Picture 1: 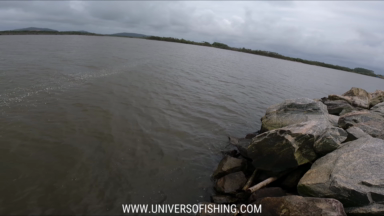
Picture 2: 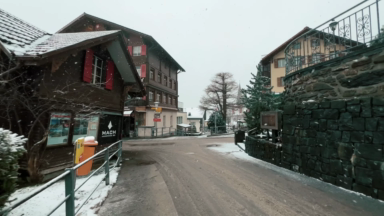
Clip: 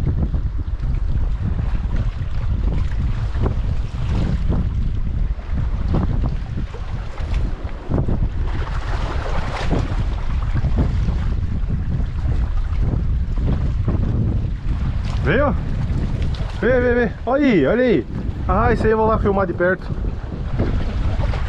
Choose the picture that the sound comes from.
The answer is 1